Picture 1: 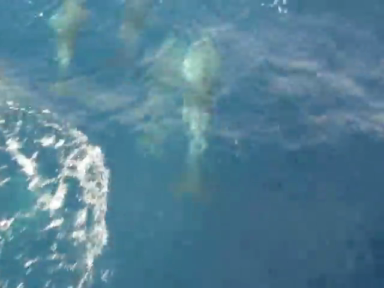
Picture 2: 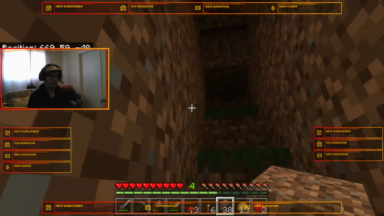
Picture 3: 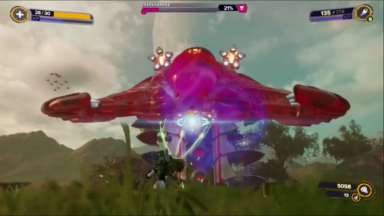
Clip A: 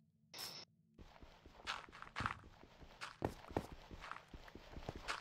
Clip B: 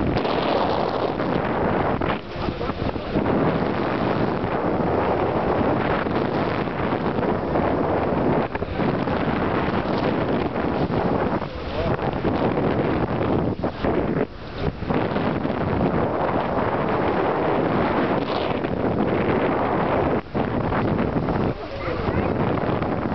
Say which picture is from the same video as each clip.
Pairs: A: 2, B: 1